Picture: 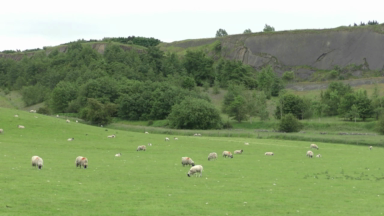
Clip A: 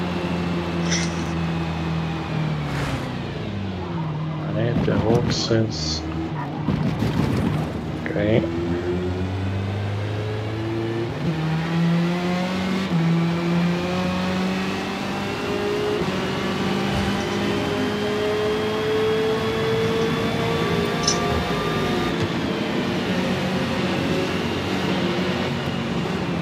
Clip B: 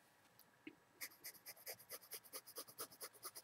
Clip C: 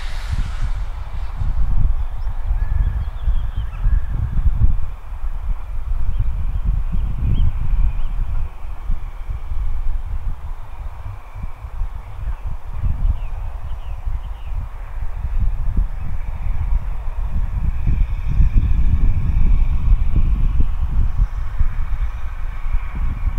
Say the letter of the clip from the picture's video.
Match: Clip C